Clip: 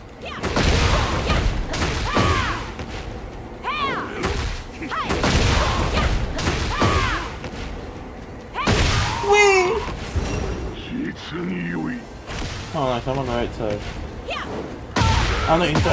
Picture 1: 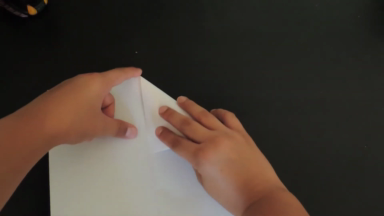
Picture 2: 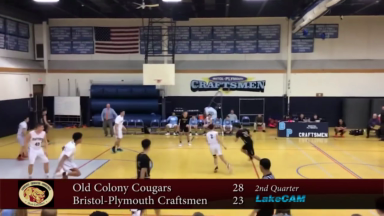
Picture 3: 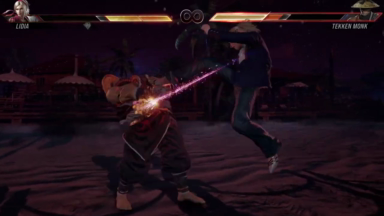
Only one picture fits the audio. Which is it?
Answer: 3